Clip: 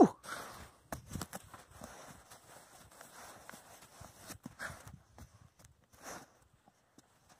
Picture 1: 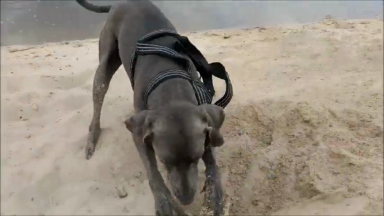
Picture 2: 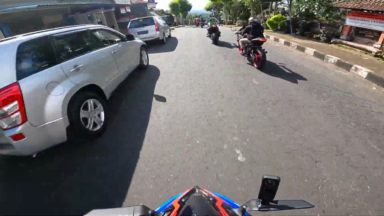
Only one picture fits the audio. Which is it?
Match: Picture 1